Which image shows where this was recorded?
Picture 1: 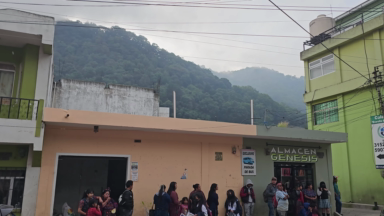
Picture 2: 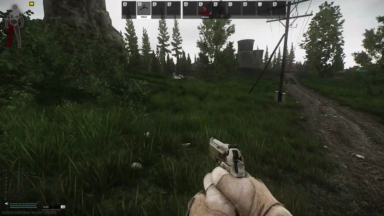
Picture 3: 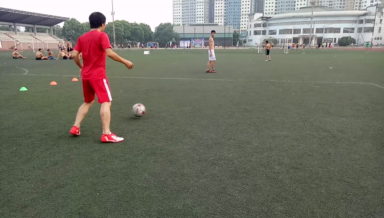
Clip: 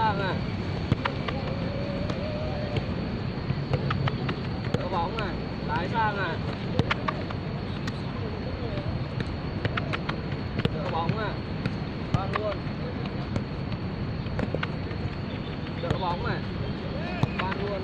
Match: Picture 3